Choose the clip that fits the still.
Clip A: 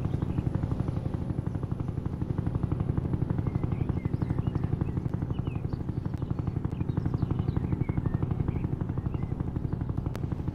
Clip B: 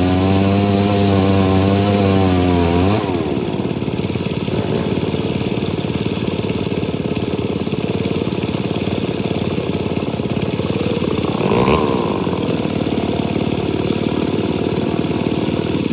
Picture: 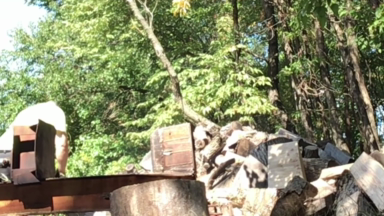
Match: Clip B